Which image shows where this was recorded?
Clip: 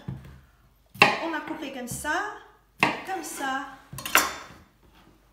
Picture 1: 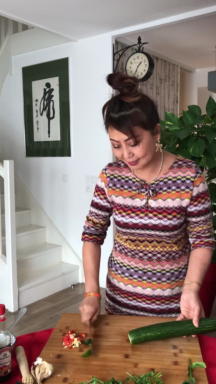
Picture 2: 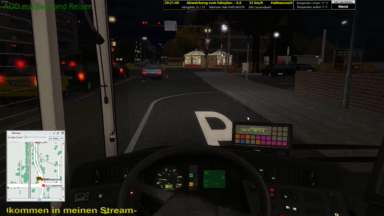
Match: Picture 1